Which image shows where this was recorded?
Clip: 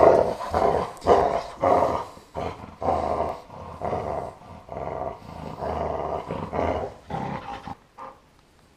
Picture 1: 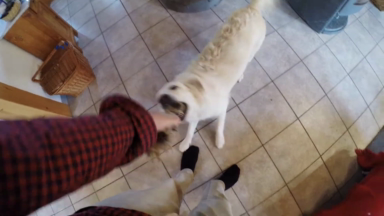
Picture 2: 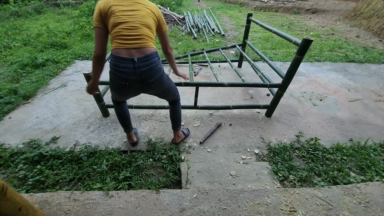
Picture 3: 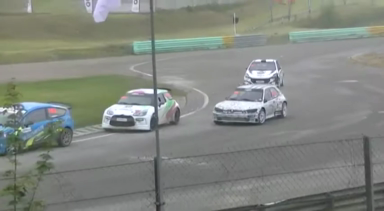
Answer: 1